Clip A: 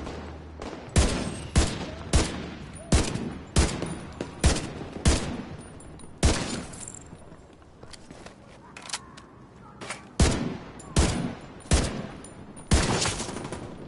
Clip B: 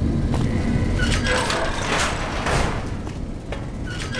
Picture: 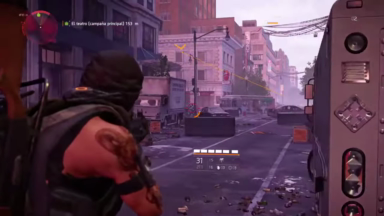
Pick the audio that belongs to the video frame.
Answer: A